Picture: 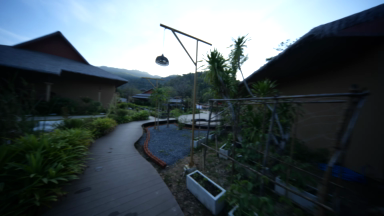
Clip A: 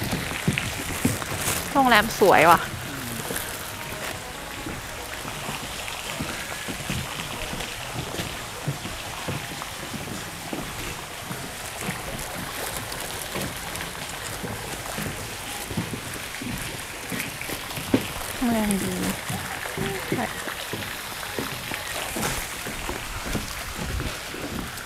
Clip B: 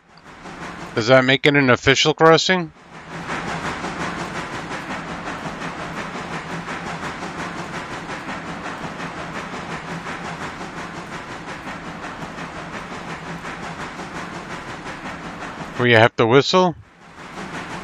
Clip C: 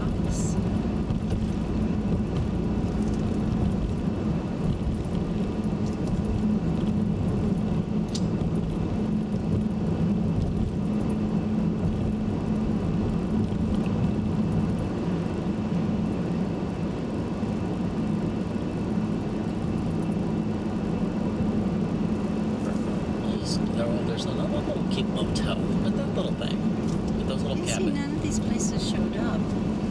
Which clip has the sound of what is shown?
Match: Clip A